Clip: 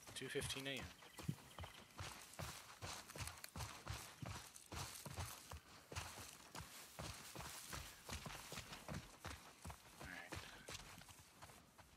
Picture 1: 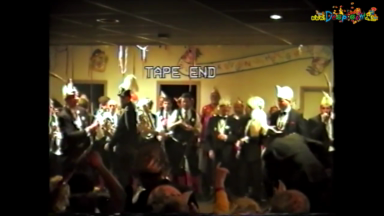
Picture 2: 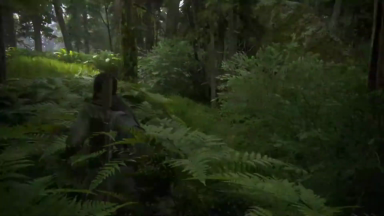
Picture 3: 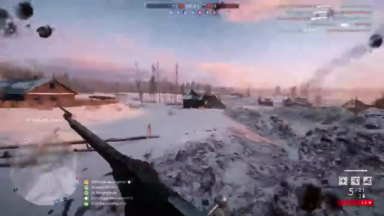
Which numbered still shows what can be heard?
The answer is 2